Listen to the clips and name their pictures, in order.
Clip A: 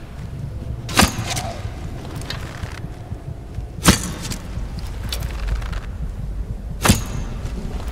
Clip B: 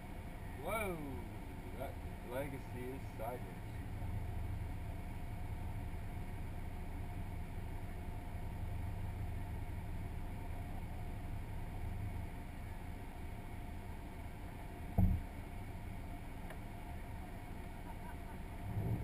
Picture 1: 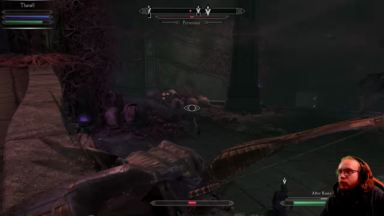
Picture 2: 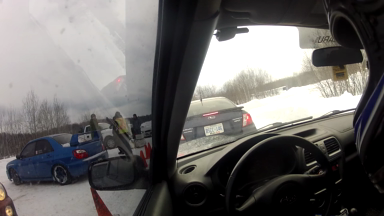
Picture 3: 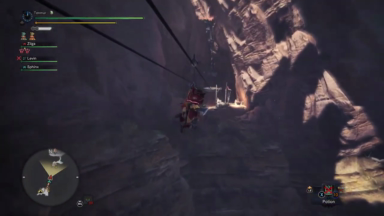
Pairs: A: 1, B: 2